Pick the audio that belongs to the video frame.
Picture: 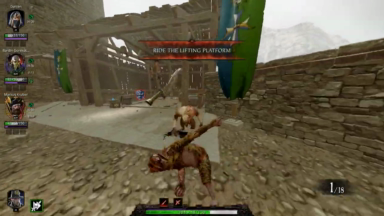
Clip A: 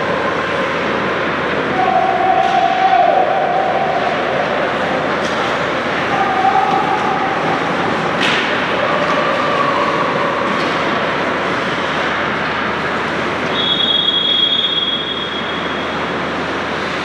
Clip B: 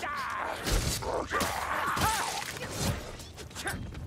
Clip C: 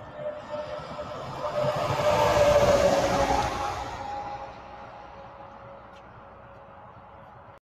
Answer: B